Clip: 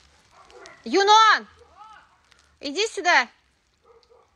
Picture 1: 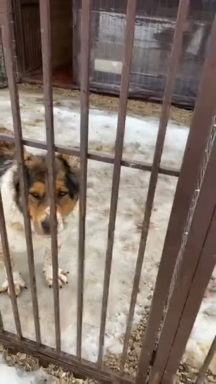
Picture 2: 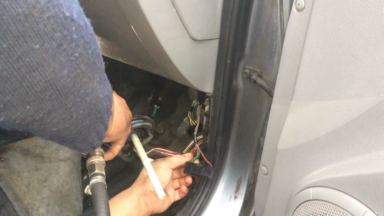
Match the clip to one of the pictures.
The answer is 1